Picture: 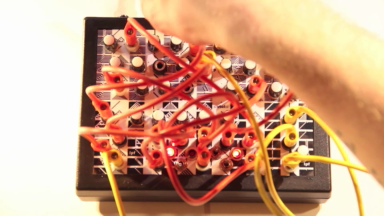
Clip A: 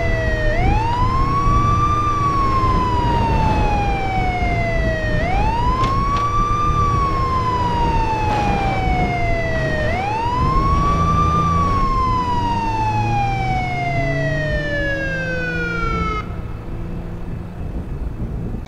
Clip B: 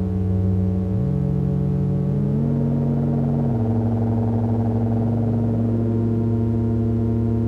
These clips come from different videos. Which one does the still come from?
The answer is B